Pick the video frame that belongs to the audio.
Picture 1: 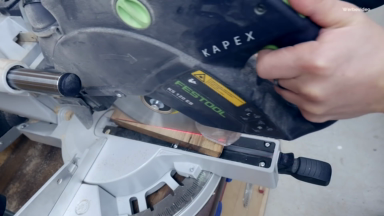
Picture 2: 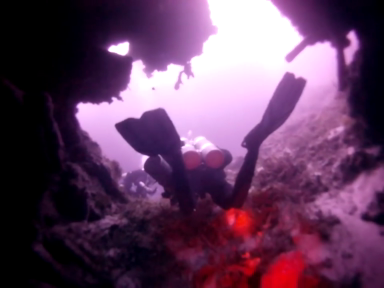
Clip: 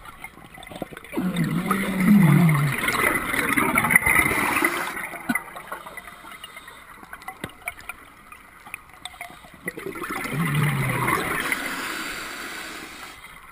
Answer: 2